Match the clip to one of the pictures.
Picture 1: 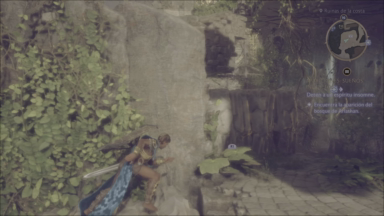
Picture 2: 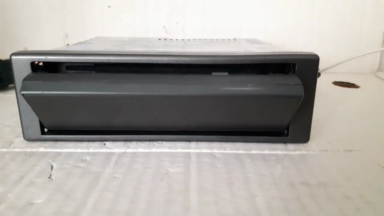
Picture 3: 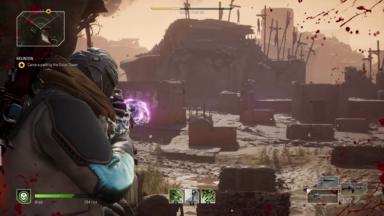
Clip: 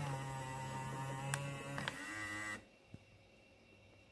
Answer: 2